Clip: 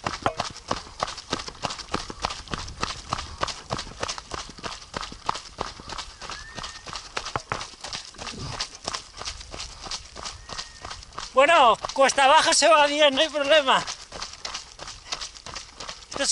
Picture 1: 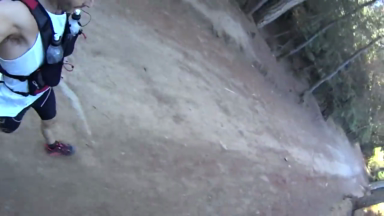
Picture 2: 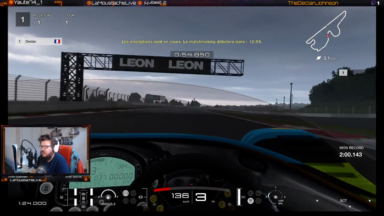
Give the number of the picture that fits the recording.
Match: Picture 1